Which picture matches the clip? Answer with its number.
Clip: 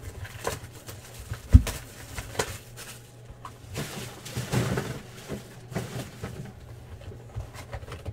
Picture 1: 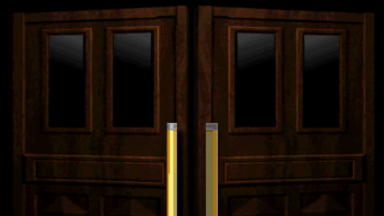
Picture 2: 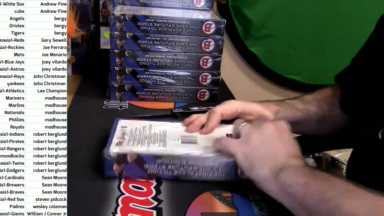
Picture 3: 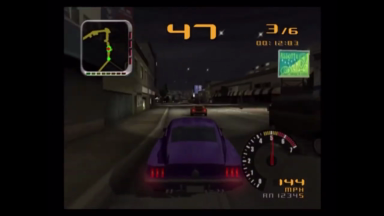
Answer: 2